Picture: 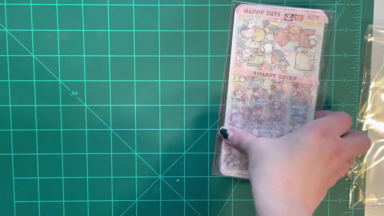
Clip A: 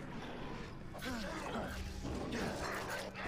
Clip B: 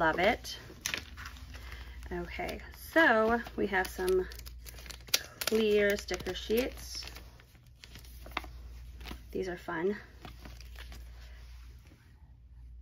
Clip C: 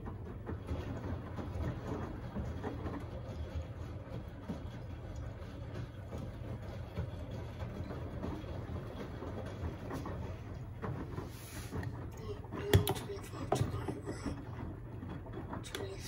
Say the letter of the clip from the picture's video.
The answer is B